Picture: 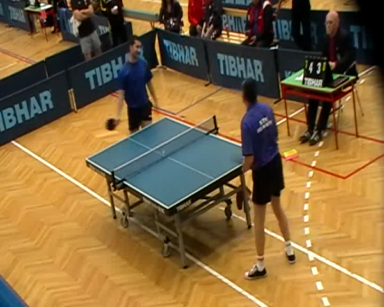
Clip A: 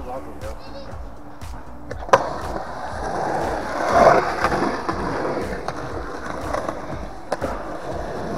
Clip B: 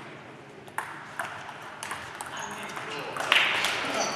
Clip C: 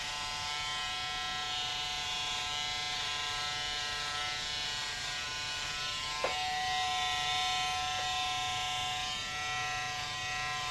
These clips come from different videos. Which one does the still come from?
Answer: B